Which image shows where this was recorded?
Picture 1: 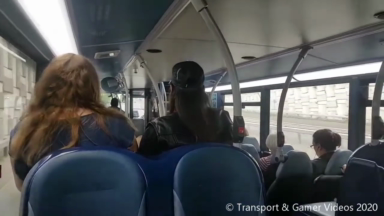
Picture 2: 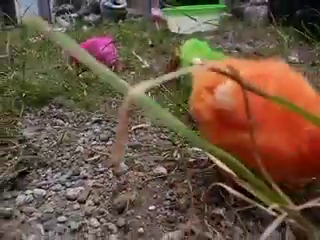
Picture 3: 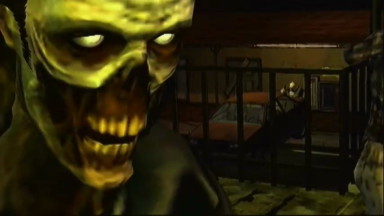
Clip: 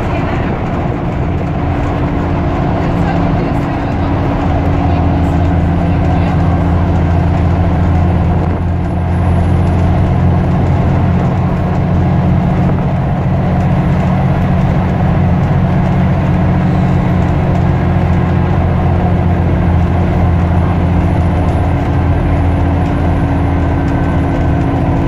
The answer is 1